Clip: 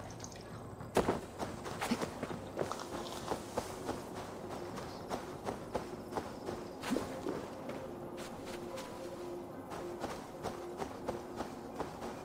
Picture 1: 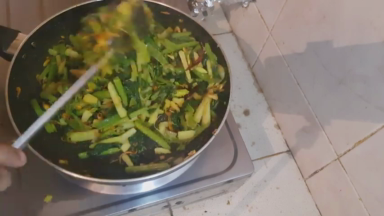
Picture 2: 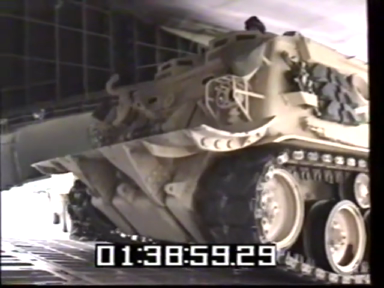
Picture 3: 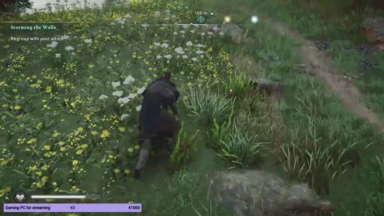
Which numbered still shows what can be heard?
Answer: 3